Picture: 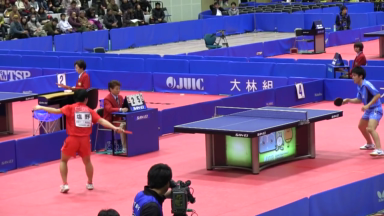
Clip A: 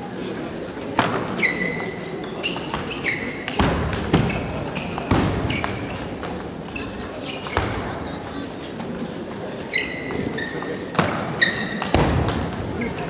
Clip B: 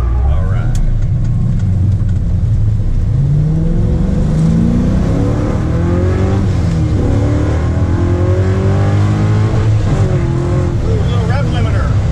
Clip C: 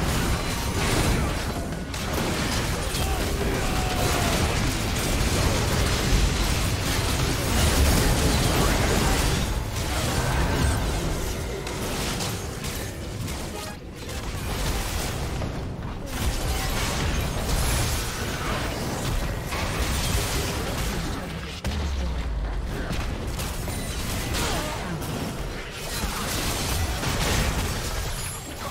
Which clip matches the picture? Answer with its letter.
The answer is A